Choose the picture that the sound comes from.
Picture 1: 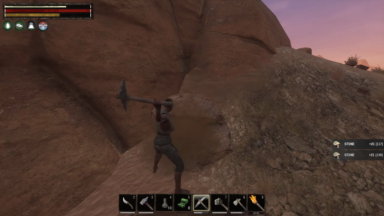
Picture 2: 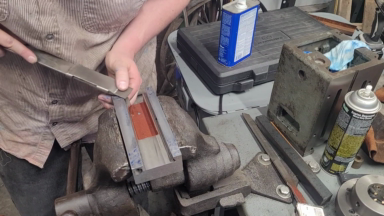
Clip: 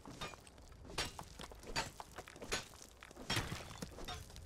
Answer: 1